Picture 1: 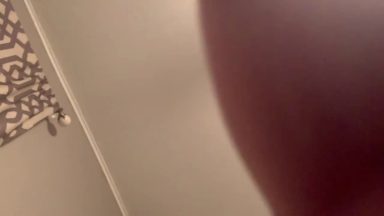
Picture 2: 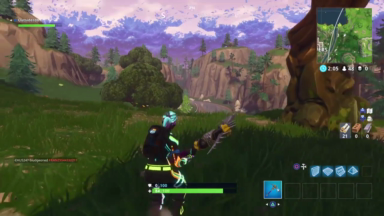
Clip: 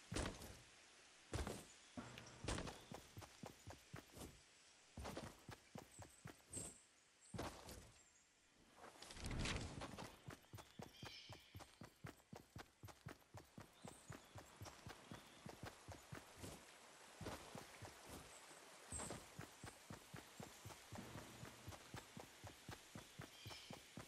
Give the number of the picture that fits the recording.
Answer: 2